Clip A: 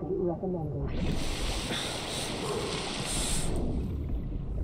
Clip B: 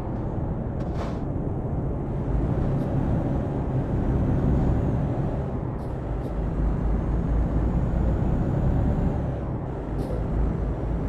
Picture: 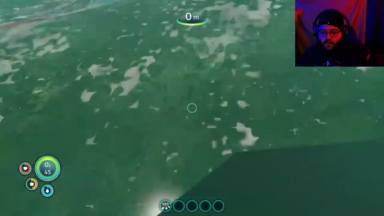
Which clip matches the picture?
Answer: A